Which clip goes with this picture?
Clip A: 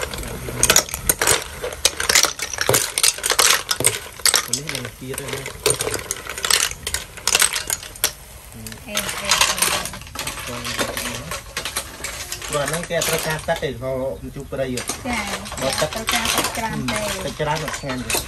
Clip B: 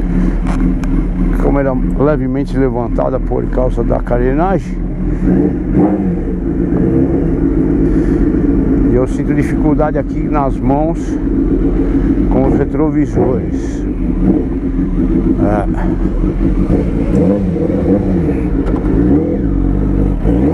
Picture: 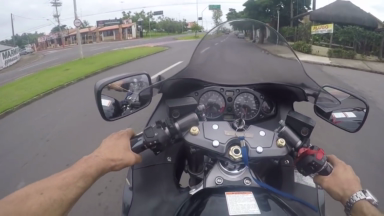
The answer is B